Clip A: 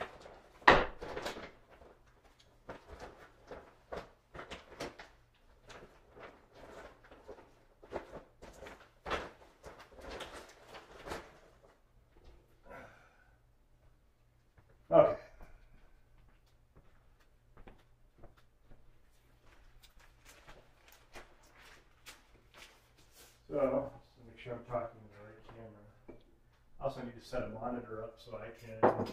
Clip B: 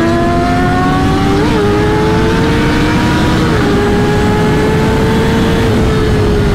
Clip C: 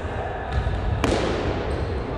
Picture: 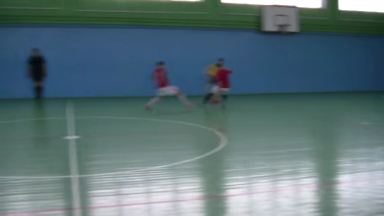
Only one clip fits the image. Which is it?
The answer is C